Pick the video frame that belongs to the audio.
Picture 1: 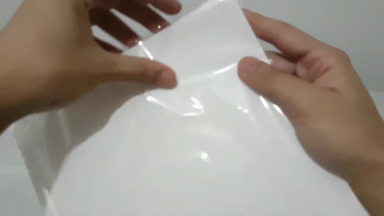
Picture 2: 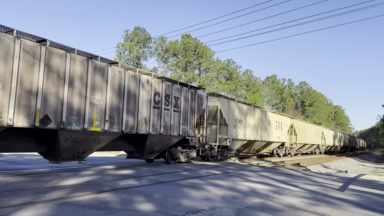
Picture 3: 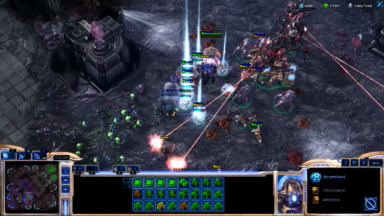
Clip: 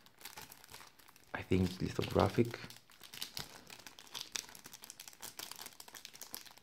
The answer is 1